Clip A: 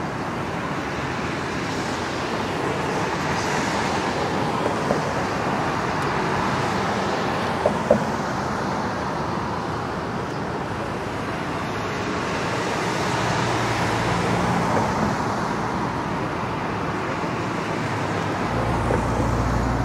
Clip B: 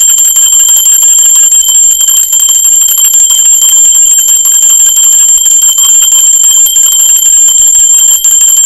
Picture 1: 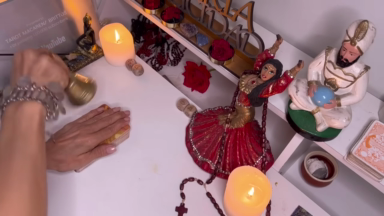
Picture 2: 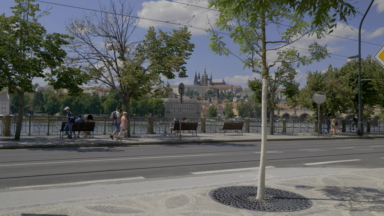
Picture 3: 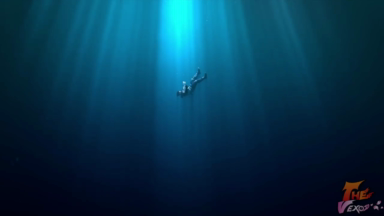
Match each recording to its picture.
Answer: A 2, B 1